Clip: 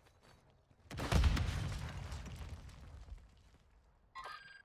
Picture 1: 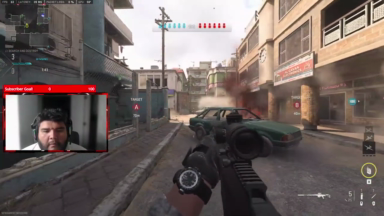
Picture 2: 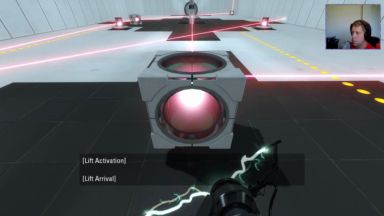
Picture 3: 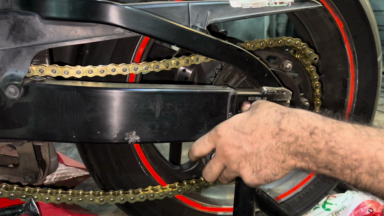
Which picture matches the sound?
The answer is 1